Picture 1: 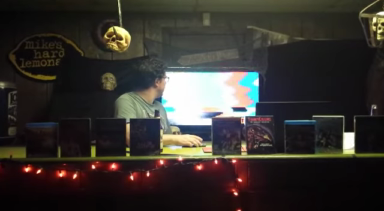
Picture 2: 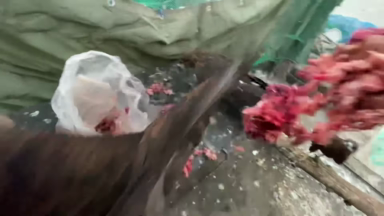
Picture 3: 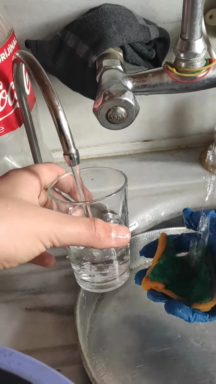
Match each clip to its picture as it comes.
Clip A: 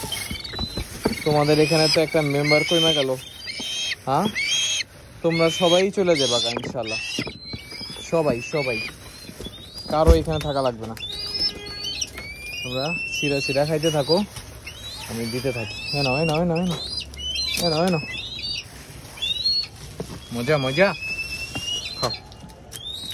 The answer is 2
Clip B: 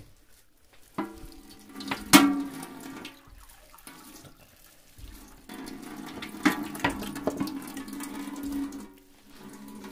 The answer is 3